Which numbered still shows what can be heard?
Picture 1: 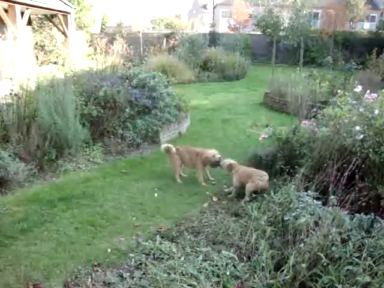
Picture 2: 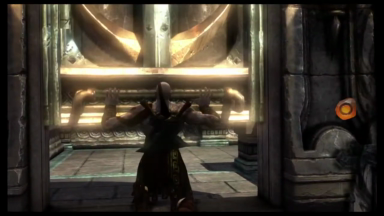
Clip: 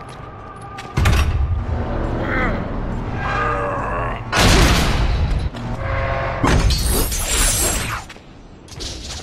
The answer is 2